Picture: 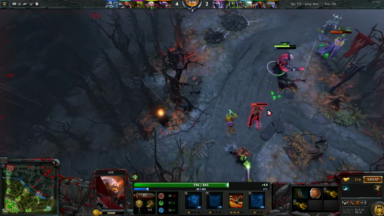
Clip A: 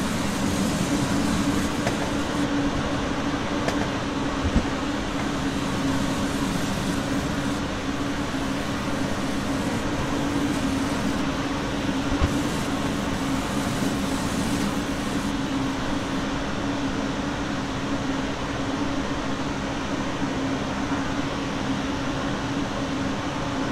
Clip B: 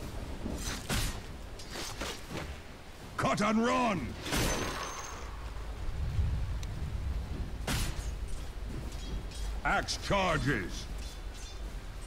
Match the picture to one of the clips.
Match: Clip B